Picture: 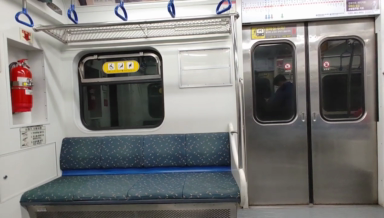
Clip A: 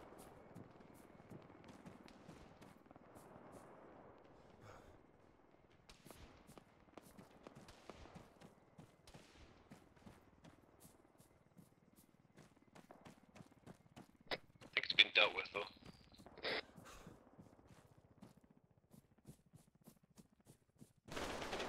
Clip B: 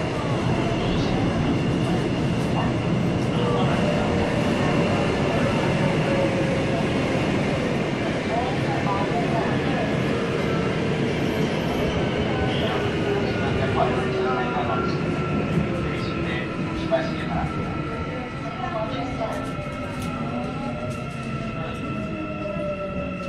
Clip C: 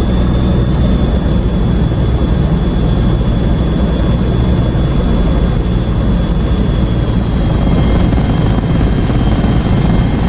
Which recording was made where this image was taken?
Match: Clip B